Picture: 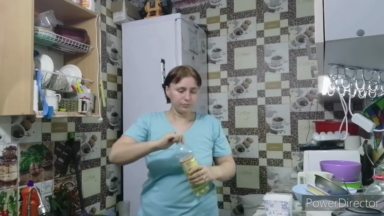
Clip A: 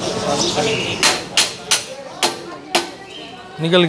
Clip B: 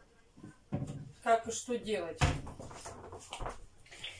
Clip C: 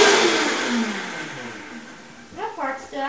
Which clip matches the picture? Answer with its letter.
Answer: B